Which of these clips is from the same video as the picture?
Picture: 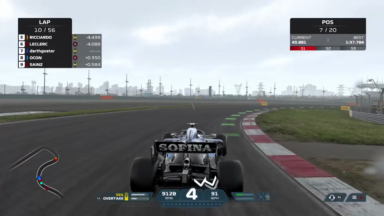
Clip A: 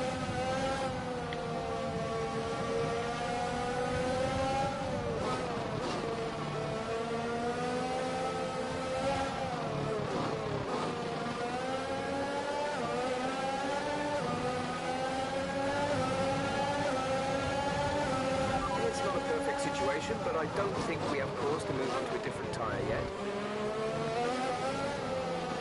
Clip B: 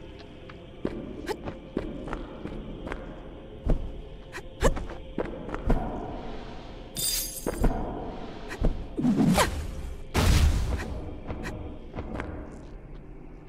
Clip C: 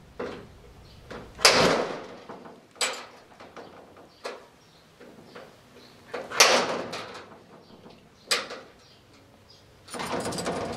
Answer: A